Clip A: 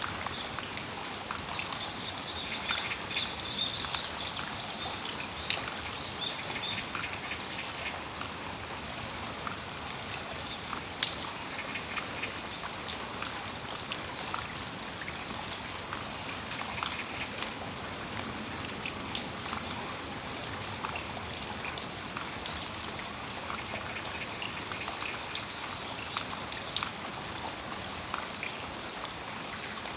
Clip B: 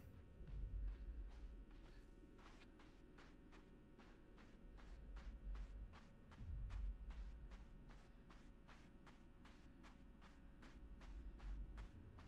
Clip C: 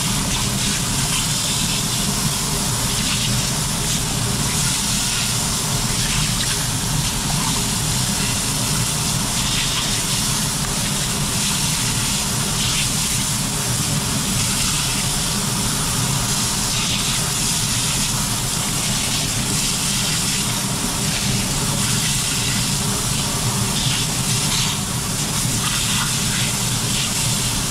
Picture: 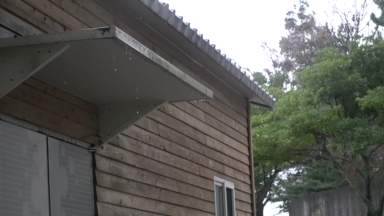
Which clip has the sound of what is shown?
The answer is A